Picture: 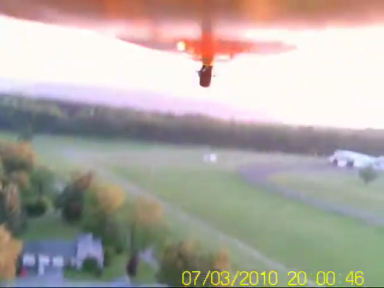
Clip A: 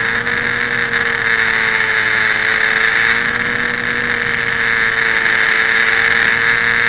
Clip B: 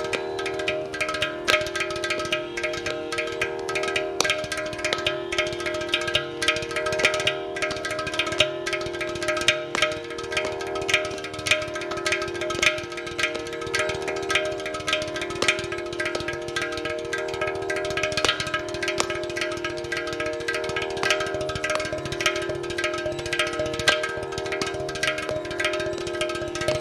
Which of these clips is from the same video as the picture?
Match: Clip A